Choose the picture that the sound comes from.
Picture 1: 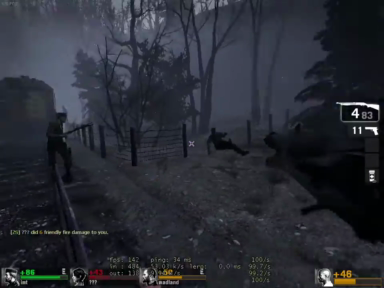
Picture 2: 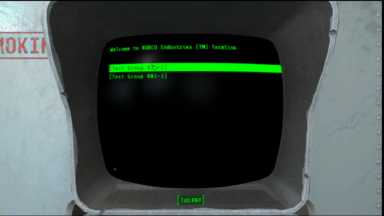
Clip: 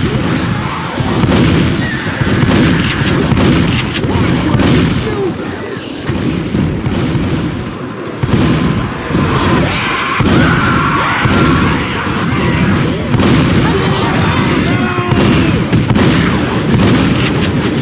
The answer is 1